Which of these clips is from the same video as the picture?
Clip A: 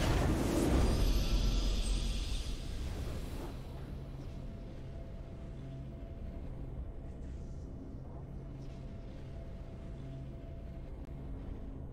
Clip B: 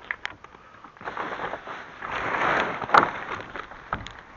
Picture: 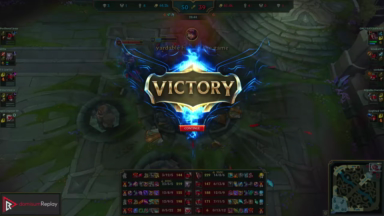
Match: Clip A